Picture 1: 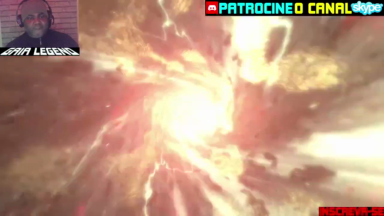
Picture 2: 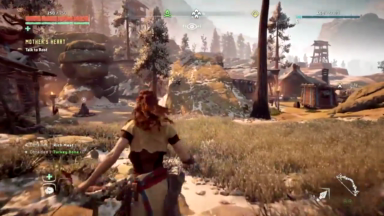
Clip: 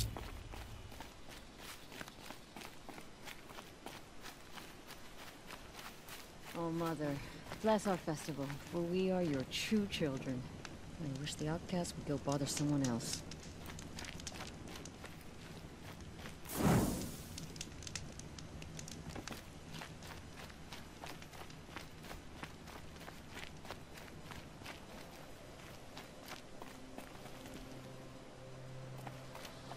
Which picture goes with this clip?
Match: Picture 2